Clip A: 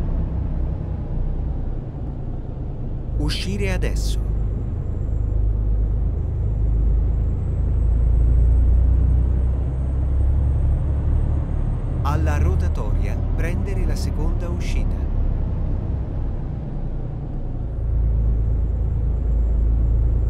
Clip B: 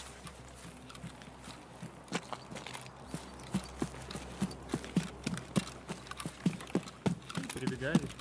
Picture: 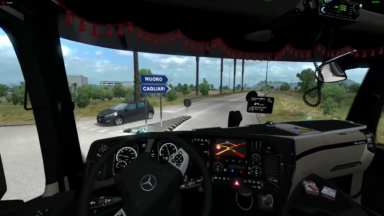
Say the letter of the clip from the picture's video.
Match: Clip A